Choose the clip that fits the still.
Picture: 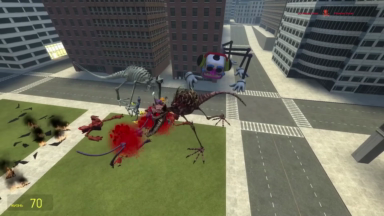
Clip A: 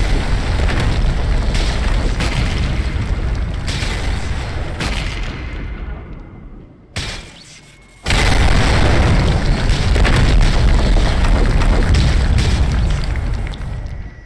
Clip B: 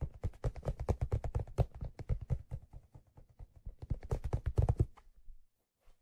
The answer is A